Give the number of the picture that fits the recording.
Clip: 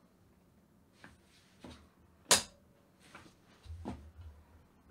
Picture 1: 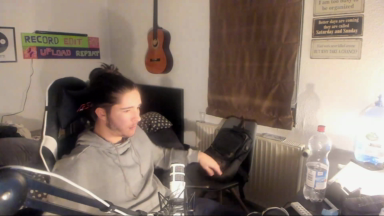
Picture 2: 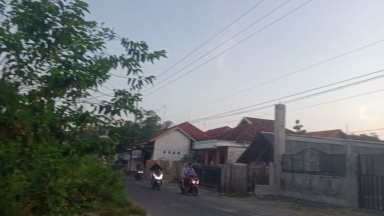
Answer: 1